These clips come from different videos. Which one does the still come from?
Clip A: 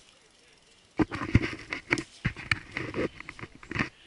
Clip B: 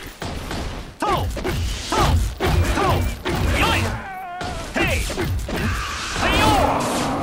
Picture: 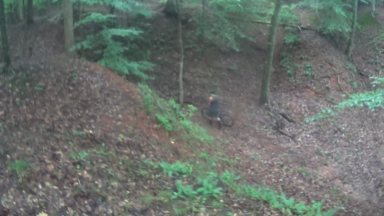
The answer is A